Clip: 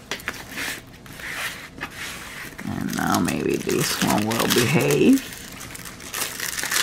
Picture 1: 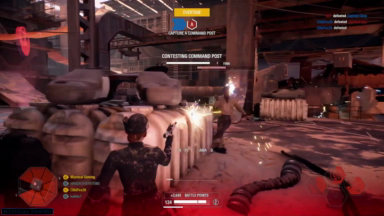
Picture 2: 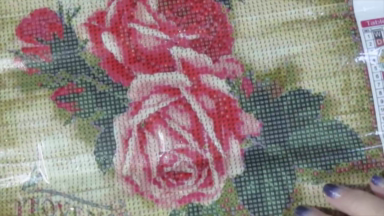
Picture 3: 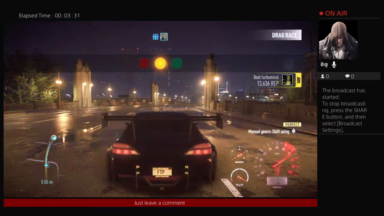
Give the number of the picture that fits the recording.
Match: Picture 2